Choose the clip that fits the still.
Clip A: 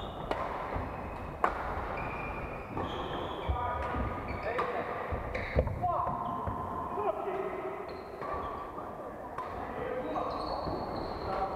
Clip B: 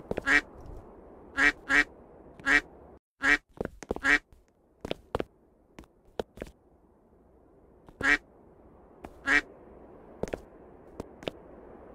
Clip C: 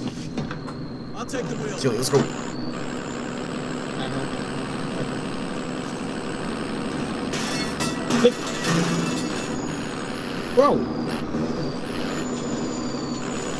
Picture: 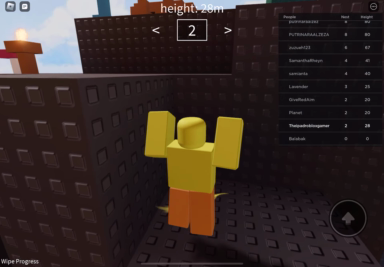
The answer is B